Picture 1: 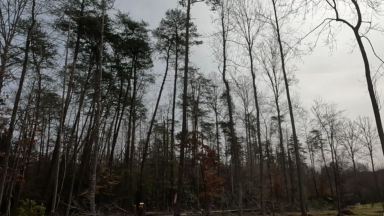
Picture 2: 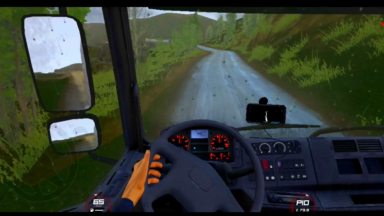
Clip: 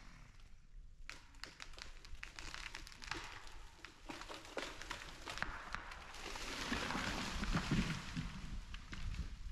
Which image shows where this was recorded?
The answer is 1